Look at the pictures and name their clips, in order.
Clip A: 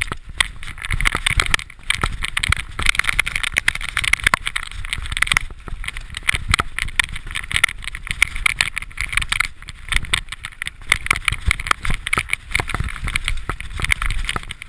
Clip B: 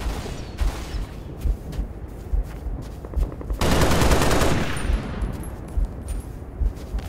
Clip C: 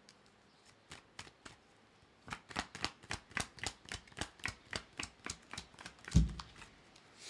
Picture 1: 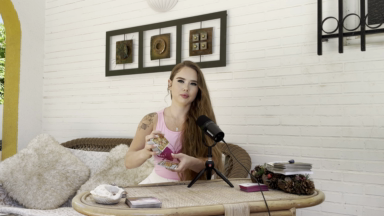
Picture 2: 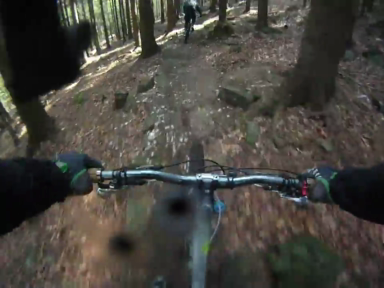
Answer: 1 C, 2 A